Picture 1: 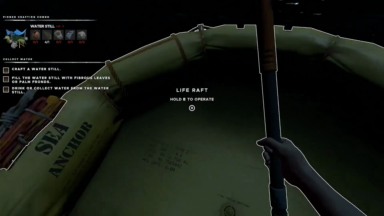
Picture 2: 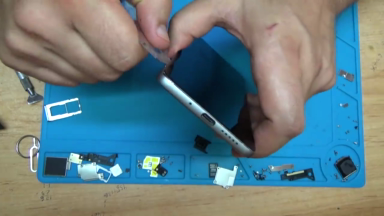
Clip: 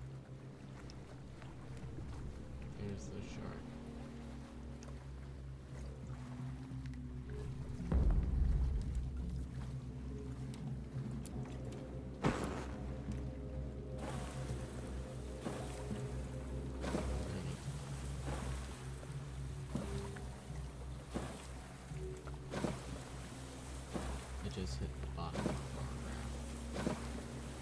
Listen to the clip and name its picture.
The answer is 1